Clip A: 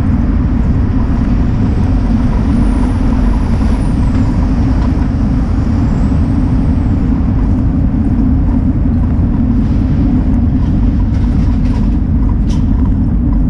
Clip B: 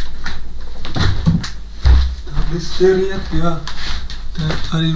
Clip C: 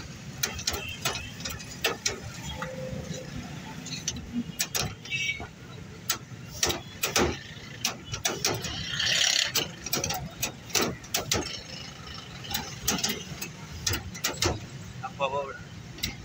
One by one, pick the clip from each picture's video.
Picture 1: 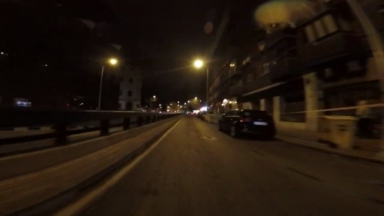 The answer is A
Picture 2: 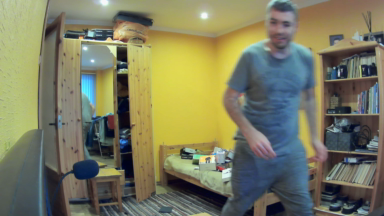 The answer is B